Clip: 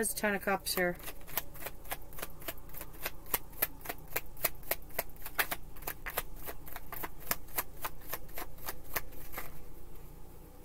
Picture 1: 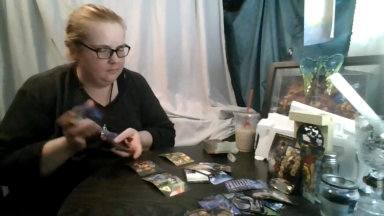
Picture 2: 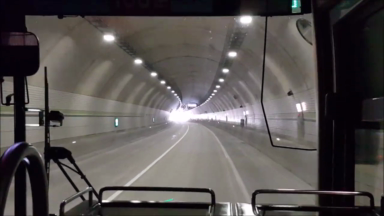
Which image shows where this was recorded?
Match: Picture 1